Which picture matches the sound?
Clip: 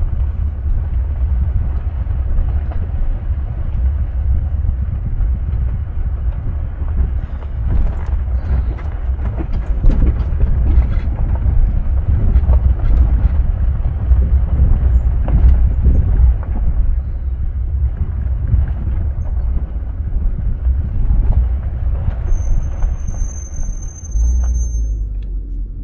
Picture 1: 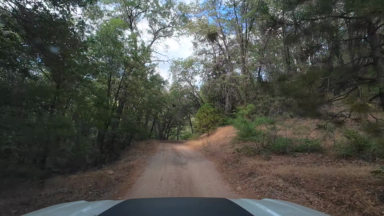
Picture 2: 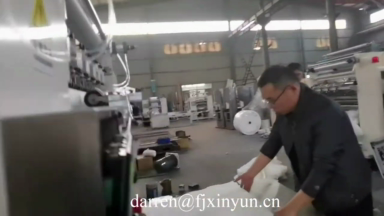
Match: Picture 1